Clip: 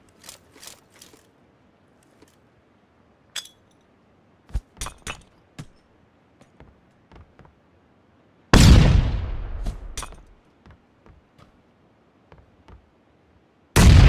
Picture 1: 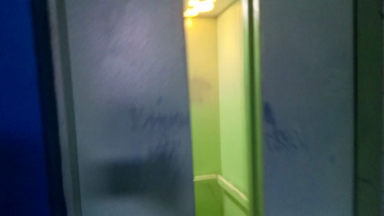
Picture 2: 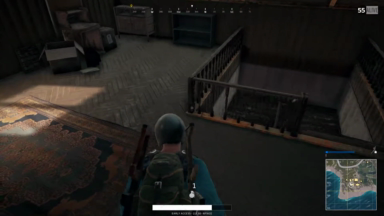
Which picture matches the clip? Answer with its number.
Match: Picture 2